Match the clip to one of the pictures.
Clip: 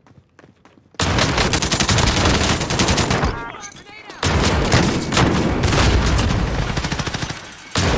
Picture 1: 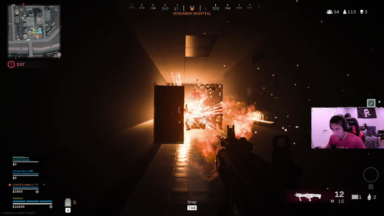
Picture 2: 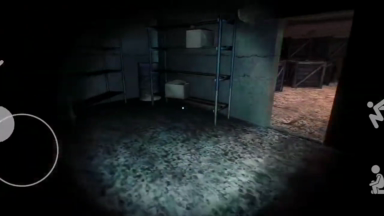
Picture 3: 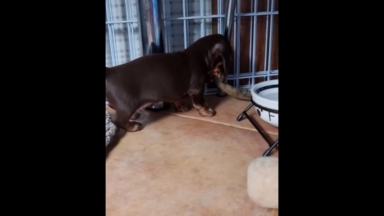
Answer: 1